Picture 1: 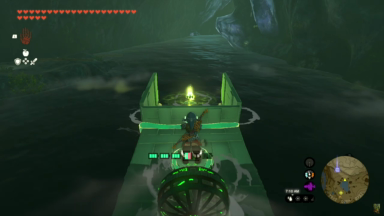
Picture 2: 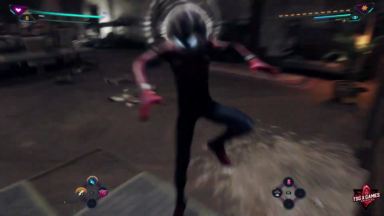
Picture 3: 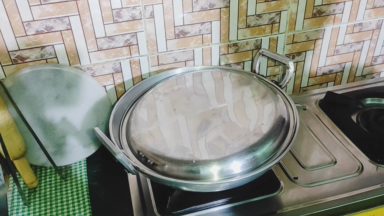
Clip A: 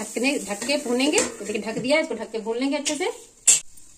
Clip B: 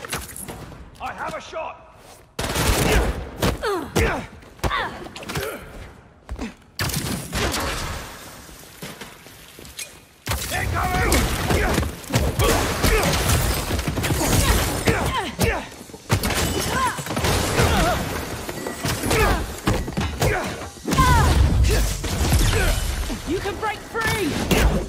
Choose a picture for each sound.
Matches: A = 3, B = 2